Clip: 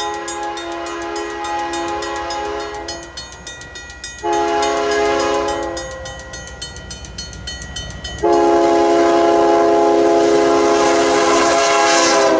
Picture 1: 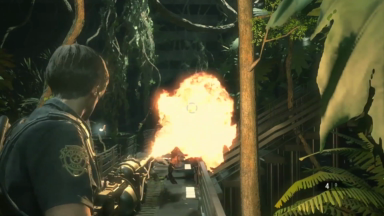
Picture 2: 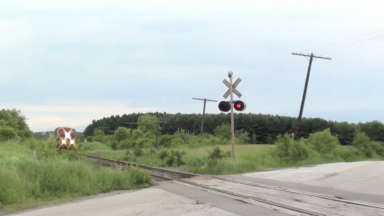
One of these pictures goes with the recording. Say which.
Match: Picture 2